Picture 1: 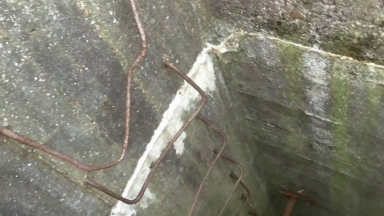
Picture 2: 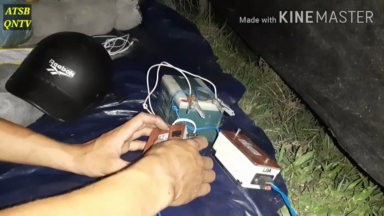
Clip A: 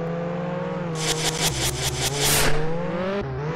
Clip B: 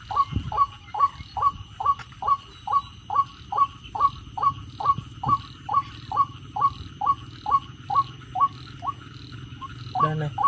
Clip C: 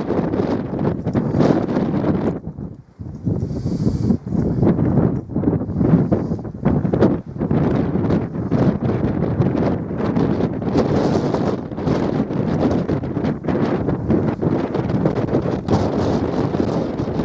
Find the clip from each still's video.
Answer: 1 C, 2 B